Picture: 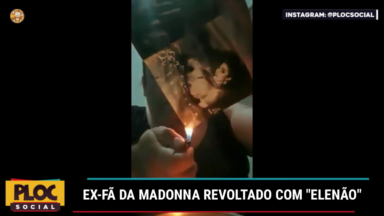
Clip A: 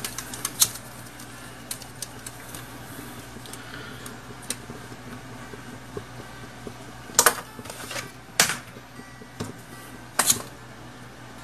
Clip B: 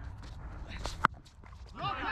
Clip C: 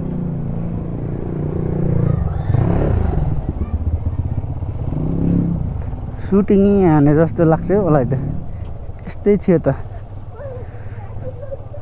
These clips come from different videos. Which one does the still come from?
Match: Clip A